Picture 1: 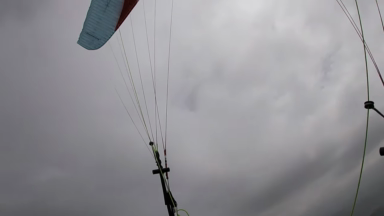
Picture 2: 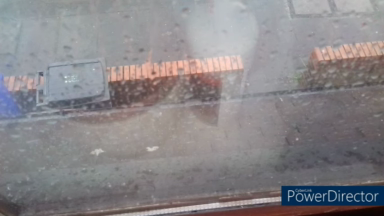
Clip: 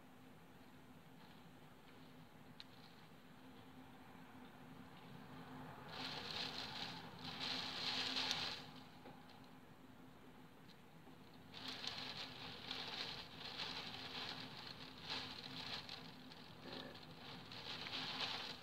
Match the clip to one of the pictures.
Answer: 2